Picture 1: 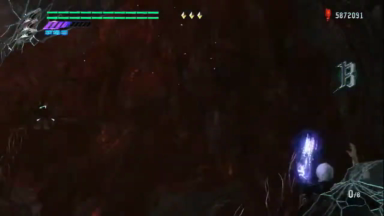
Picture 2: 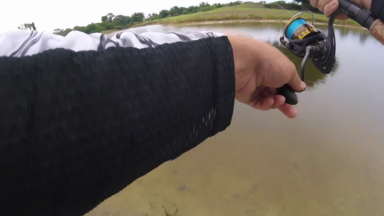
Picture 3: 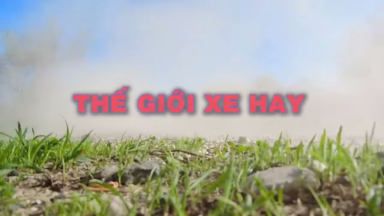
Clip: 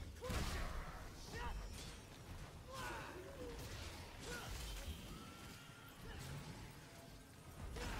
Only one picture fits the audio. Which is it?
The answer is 1